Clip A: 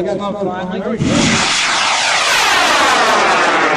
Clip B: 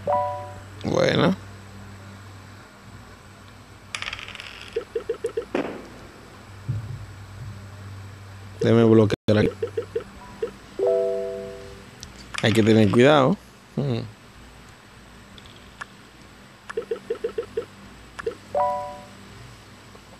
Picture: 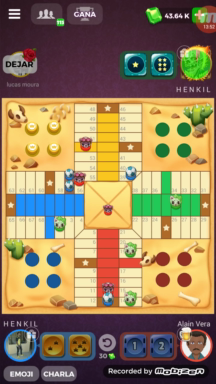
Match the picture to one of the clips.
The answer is B